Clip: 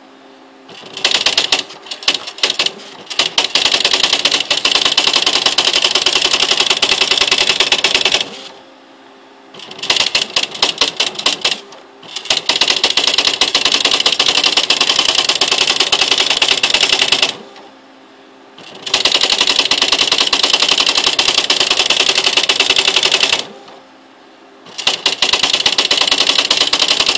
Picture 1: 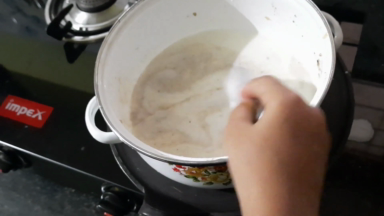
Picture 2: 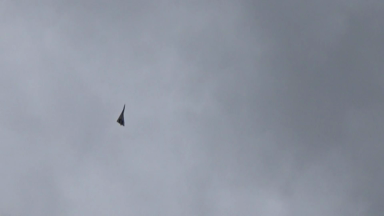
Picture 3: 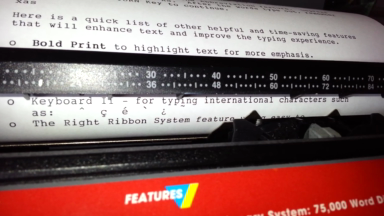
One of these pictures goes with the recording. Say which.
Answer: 3